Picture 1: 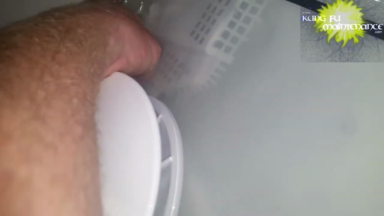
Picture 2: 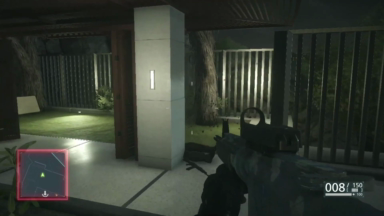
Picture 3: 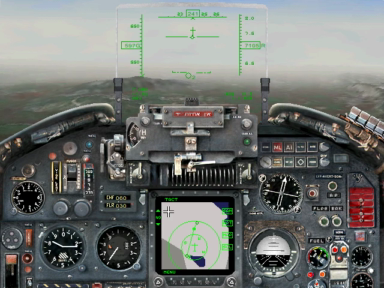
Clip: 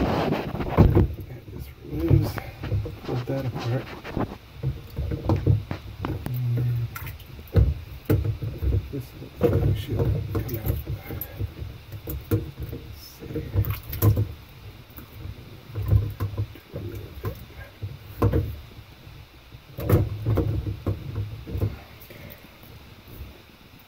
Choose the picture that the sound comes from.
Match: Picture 1